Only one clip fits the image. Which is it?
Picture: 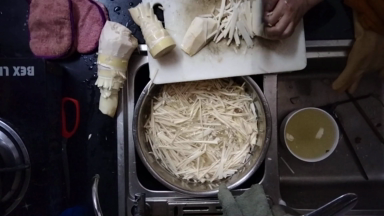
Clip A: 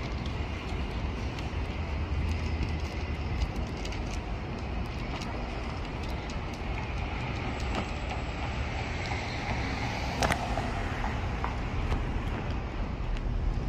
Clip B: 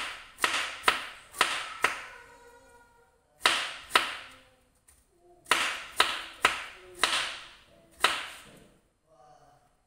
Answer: B